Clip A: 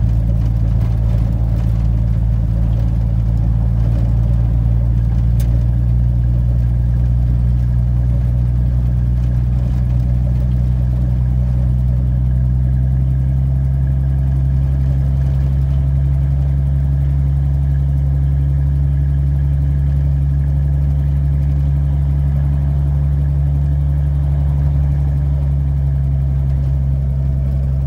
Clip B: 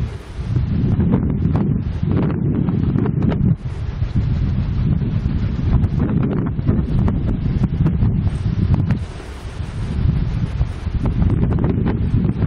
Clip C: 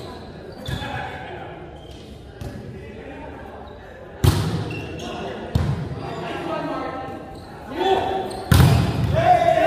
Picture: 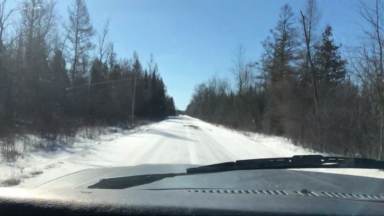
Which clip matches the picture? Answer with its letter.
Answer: A